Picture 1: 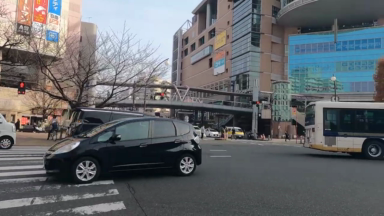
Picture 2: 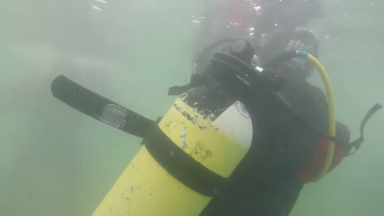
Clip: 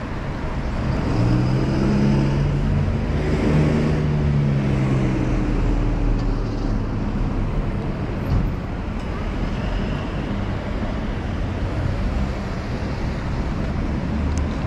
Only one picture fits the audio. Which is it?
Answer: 1